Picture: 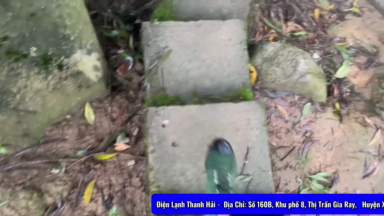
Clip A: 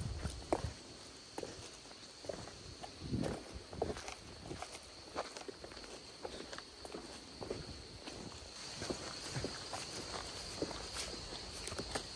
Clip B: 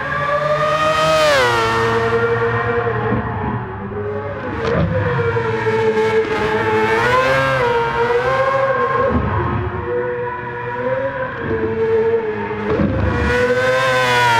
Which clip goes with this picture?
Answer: A